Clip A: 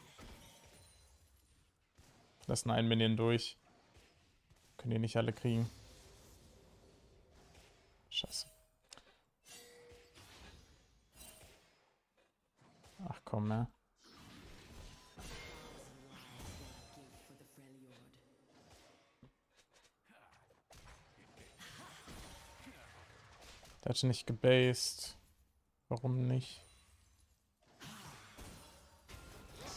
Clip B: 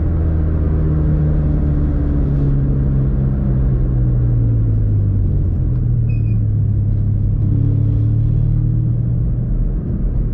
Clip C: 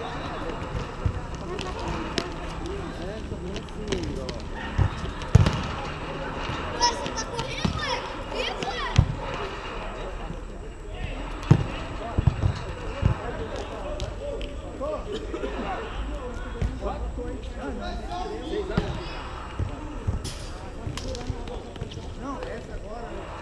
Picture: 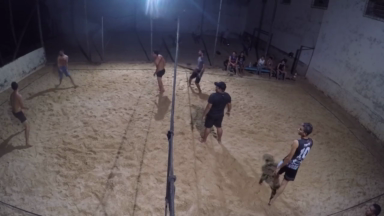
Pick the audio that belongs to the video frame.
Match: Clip C